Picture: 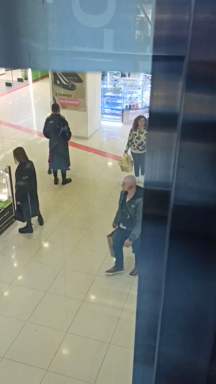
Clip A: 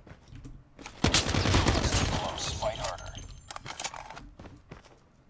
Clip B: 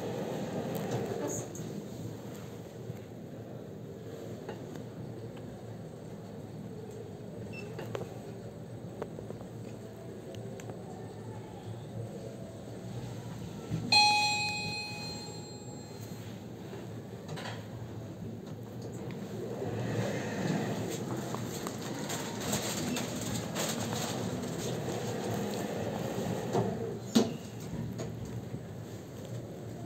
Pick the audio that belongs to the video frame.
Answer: B